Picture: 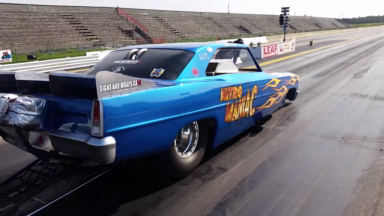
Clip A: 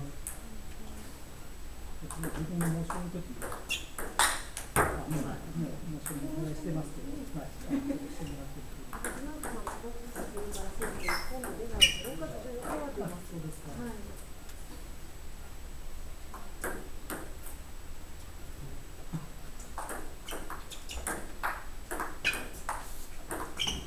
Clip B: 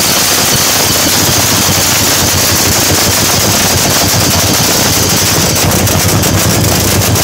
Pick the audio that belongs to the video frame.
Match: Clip B